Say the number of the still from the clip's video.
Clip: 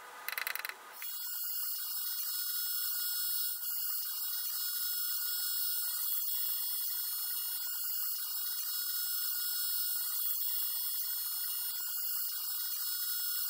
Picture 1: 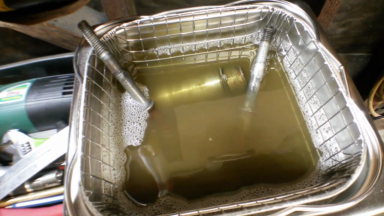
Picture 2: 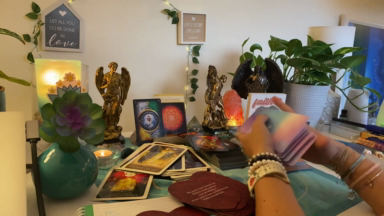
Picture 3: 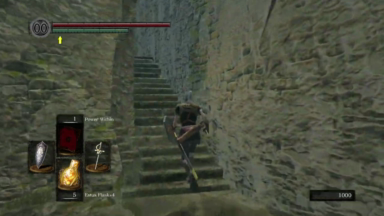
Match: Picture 1